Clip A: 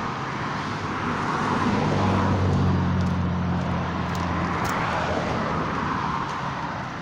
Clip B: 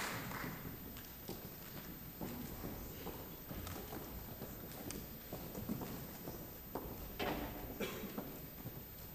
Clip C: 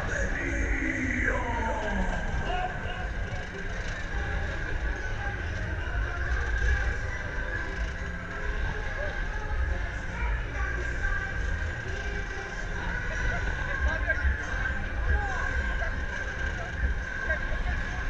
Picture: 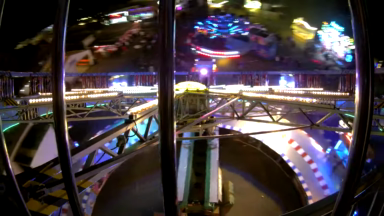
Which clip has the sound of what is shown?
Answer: C